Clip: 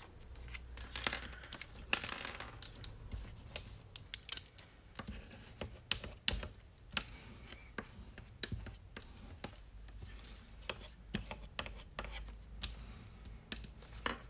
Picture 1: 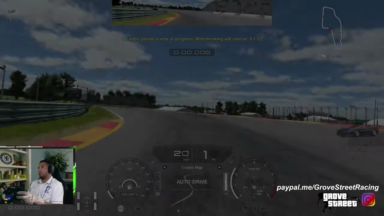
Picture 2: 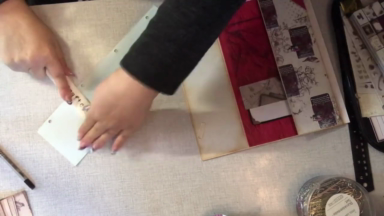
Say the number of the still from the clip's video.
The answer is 2